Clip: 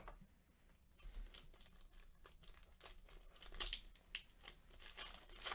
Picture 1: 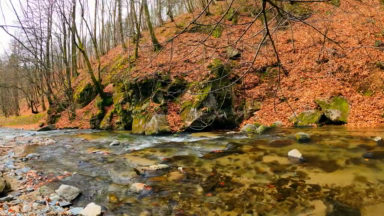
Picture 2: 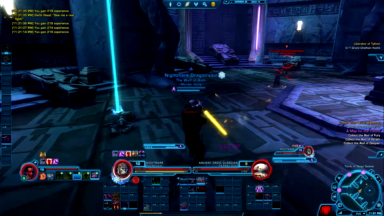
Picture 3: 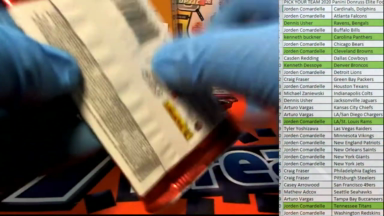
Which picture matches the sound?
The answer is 3